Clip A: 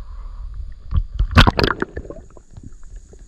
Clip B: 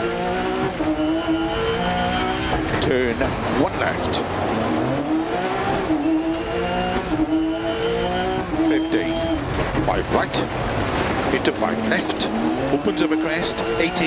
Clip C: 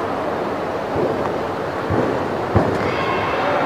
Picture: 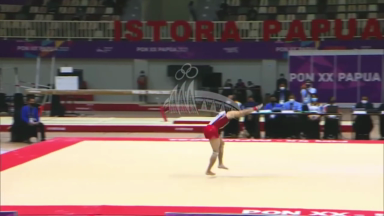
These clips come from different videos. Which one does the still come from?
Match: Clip C